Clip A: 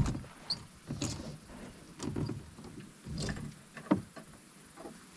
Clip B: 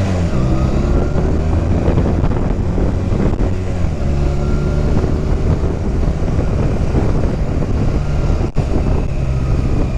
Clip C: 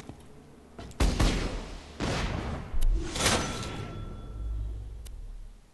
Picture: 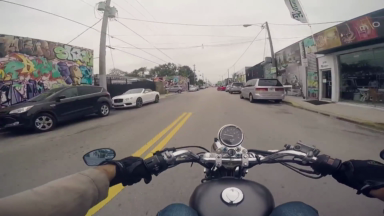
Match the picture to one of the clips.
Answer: B